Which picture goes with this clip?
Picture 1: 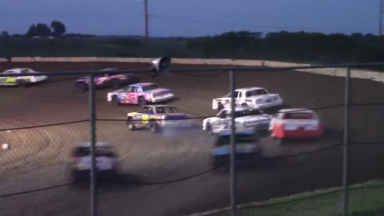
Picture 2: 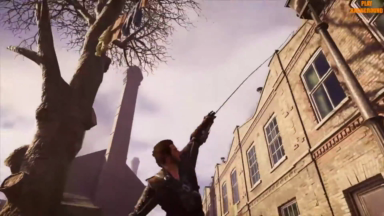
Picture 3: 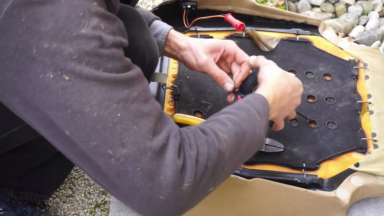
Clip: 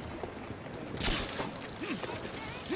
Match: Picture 2